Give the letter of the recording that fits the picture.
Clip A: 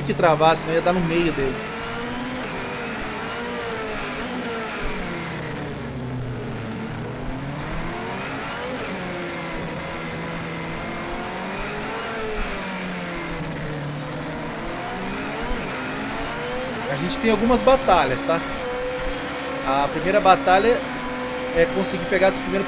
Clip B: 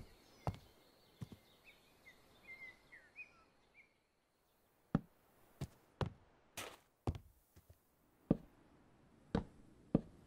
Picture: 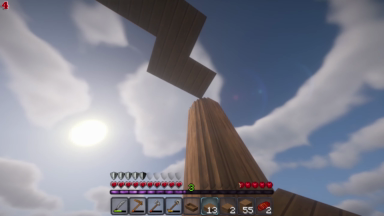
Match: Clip B